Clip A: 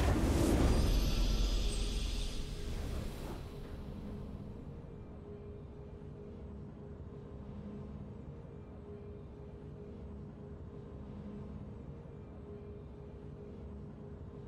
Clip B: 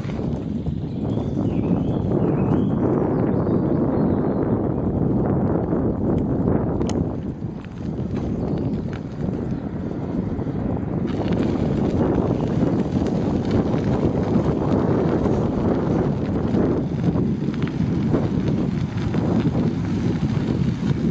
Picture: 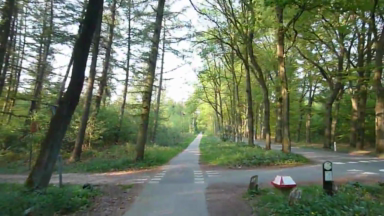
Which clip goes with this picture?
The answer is B